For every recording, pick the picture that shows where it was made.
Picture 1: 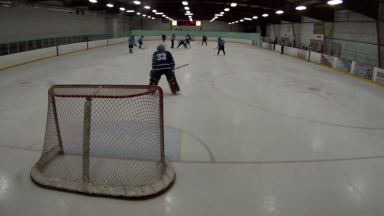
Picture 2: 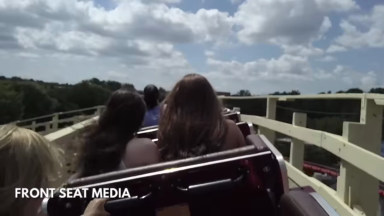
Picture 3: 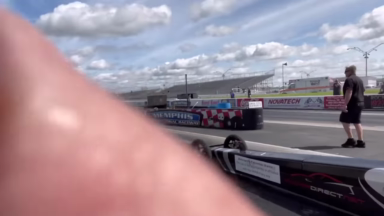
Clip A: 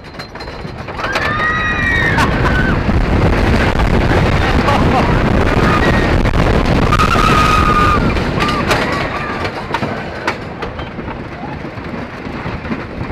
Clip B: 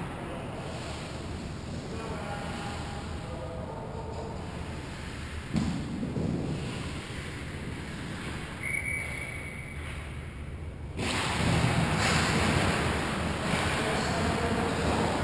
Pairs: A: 2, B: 1